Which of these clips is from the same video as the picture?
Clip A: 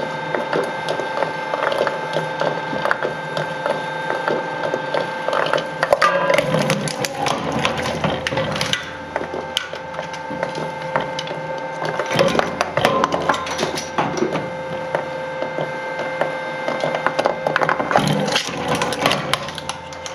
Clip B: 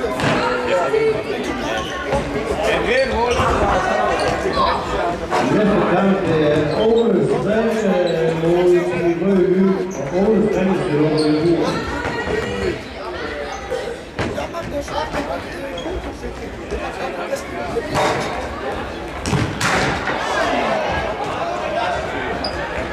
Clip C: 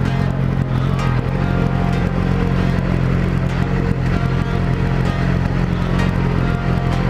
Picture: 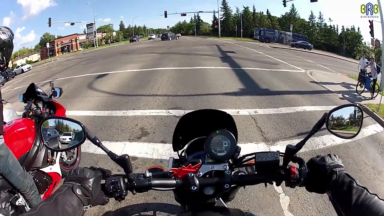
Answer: C